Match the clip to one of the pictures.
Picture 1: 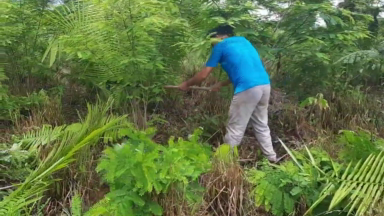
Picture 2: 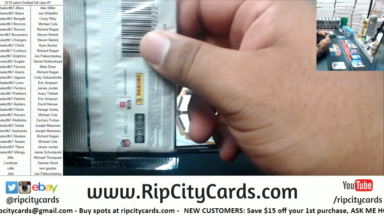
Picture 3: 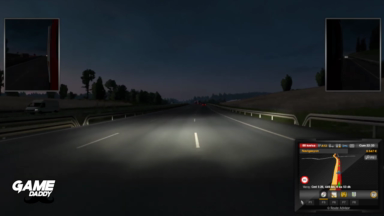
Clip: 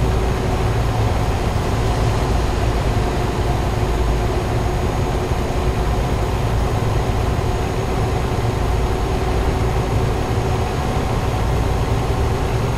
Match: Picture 3